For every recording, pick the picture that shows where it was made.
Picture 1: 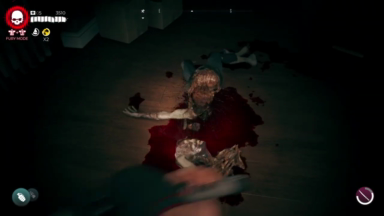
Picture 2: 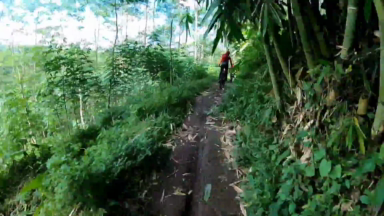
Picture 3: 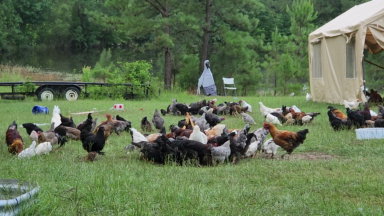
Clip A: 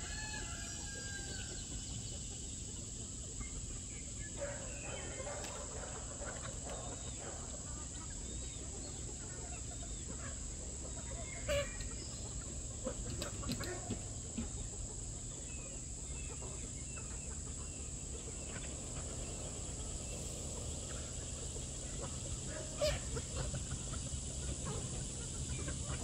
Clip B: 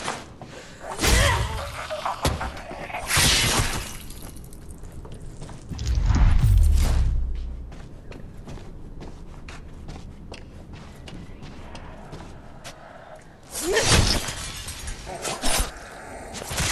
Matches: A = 3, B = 1